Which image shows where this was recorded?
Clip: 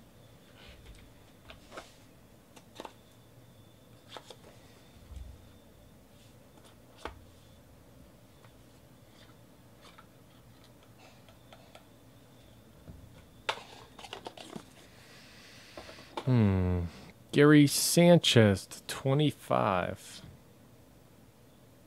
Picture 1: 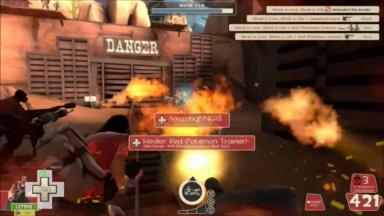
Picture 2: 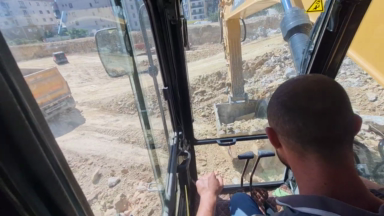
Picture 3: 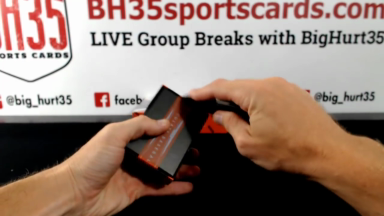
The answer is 3